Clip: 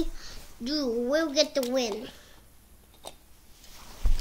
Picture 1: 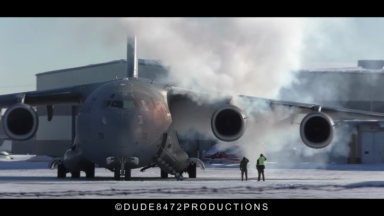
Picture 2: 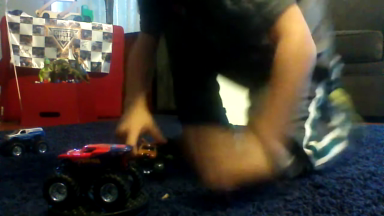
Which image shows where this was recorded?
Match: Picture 2